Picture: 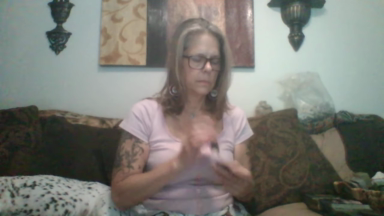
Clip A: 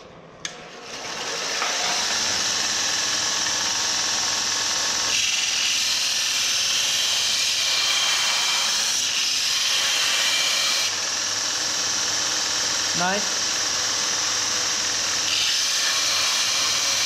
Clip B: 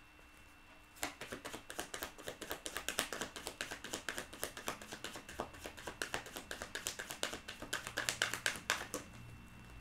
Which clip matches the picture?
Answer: B